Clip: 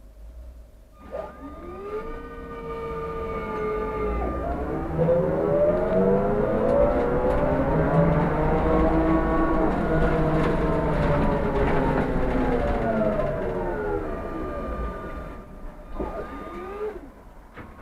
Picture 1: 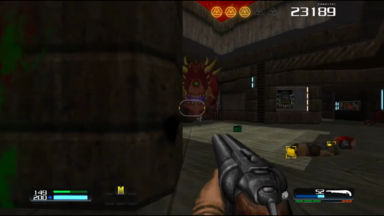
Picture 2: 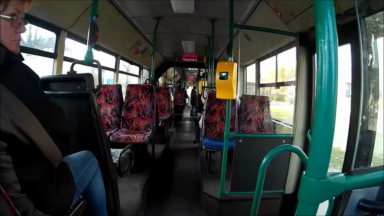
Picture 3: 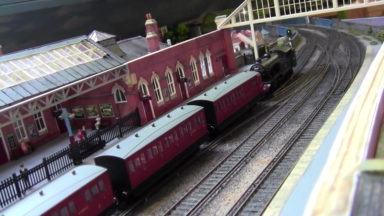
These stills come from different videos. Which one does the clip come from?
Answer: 2